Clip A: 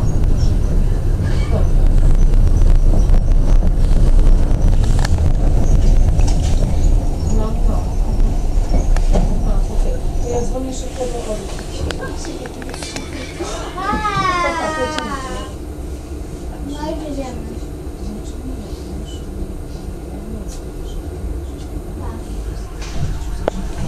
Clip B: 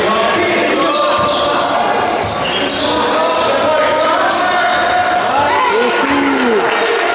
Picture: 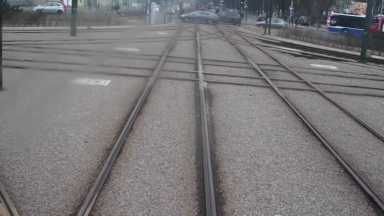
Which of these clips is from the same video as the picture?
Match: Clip A